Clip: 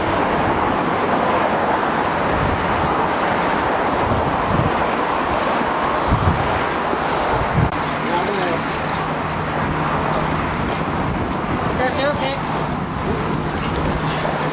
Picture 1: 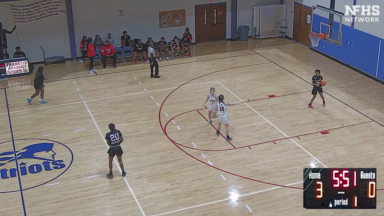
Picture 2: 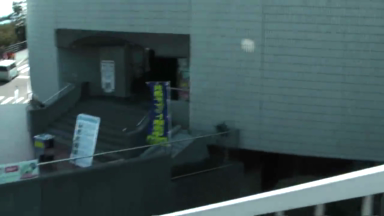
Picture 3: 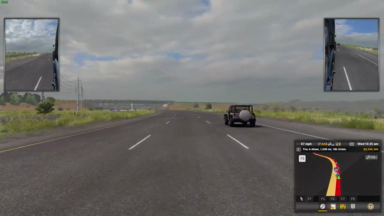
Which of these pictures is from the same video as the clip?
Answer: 2